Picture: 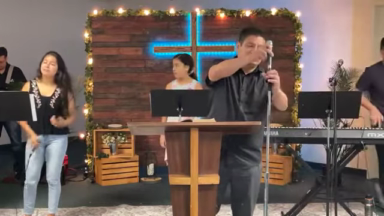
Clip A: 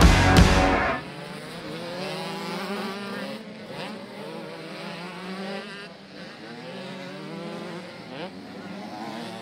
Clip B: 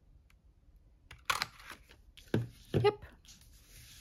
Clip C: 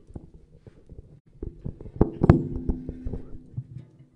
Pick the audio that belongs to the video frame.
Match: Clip C